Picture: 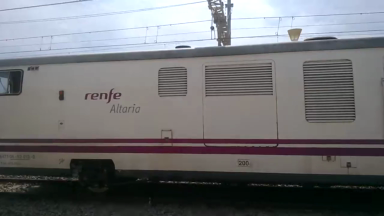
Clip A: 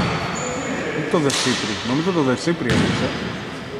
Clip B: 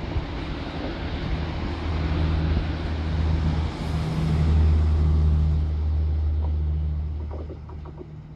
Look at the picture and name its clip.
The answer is B